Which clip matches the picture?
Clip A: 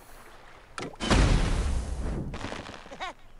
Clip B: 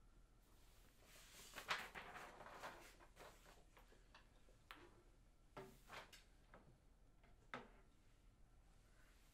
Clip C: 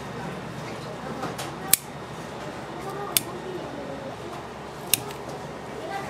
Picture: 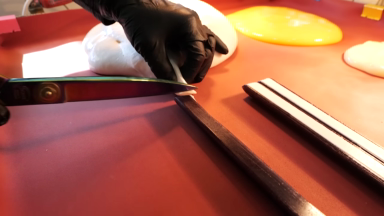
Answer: C